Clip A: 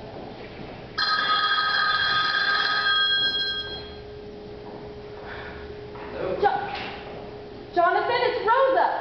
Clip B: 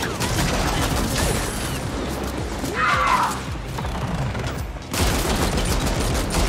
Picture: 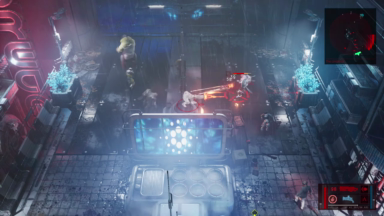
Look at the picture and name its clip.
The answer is B